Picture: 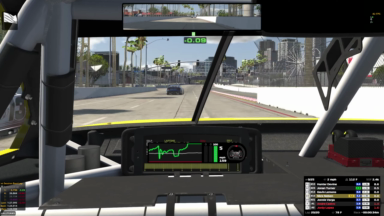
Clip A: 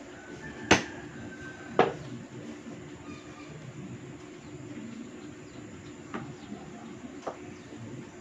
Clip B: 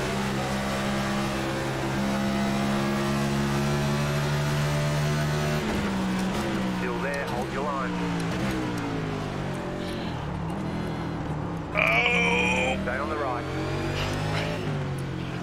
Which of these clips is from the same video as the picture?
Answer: B